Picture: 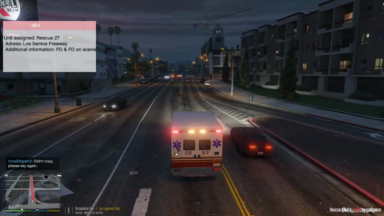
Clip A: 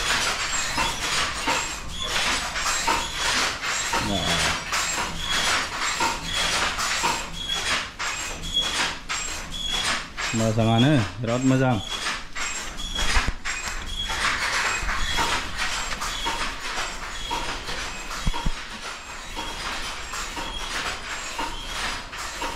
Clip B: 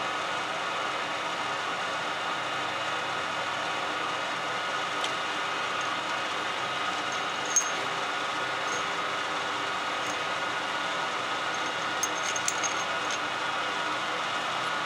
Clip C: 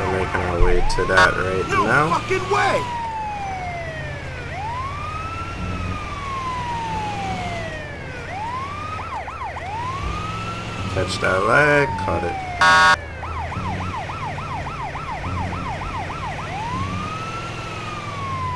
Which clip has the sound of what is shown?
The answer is C